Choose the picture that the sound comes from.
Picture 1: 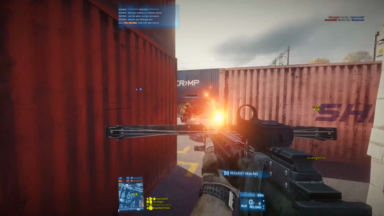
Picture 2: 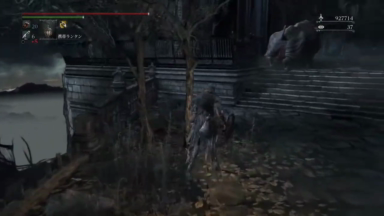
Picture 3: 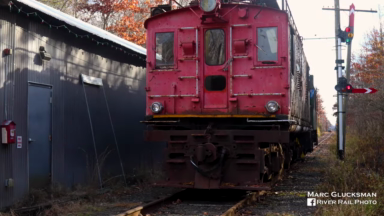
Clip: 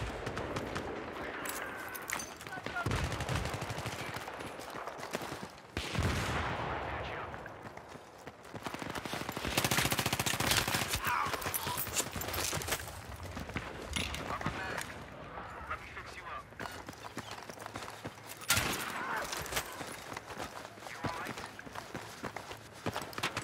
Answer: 1